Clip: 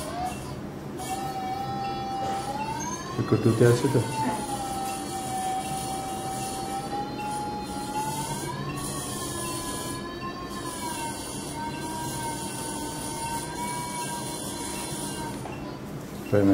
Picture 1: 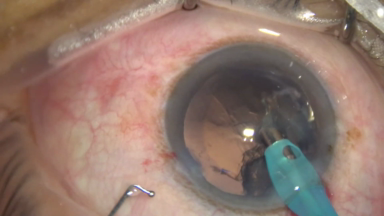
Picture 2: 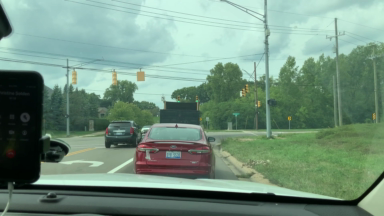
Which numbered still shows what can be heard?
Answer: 1